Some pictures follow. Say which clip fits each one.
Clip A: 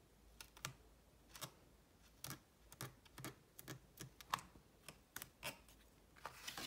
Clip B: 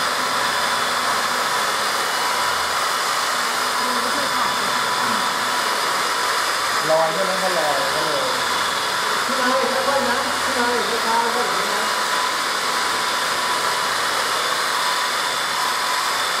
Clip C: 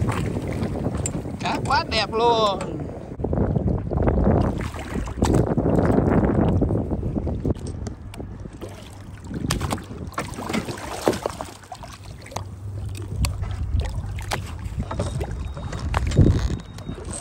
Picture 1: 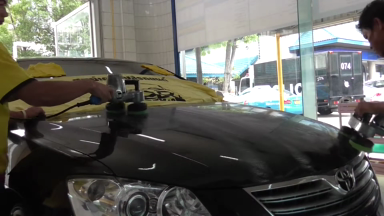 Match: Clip B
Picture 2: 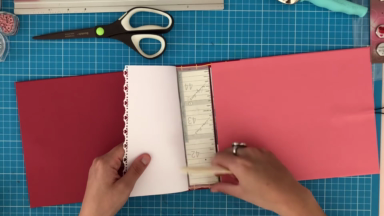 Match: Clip A